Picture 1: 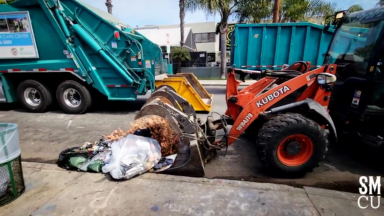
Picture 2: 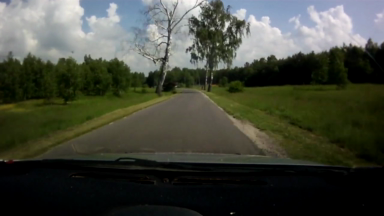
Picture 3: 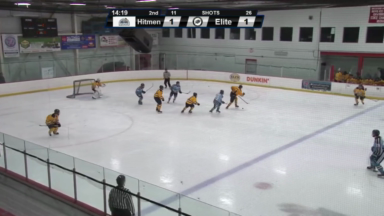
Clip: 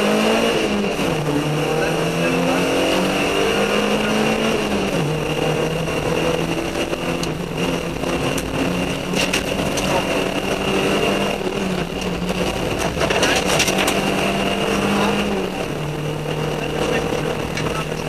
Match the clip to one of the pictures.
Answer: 2